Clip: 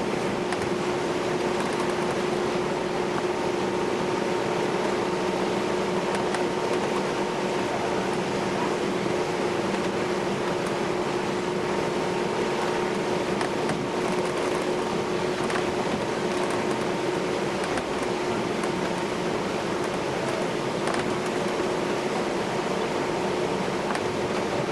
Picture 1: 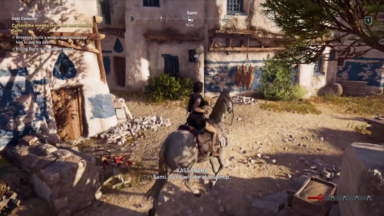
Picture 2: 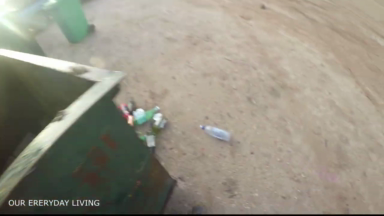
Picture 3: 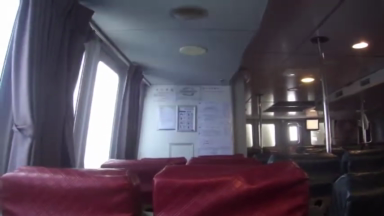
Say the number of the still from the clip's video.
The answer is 3